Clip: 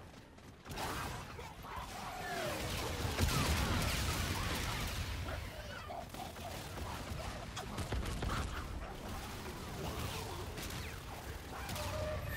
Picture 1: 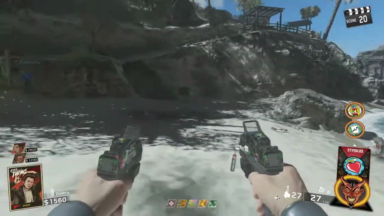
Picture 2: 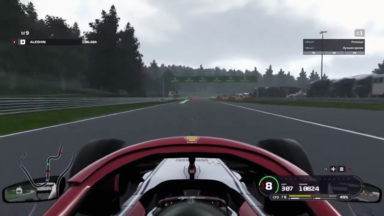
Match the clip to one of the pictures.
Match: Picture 1